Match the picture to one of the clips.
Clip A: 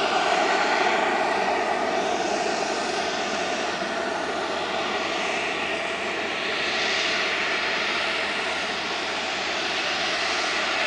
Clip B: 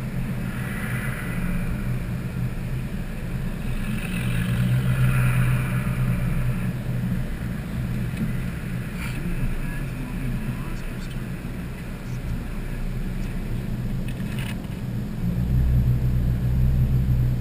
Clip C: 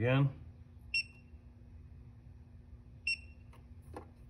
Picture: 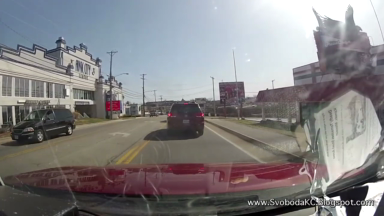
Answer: B